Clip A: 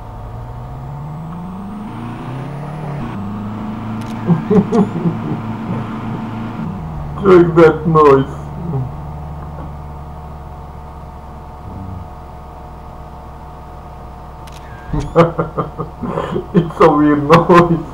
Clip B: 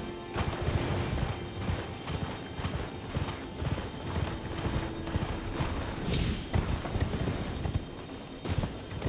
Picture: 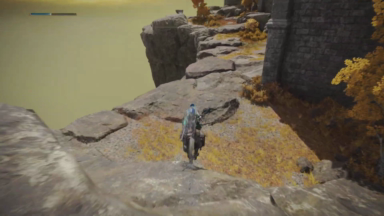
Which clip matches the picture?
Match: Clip B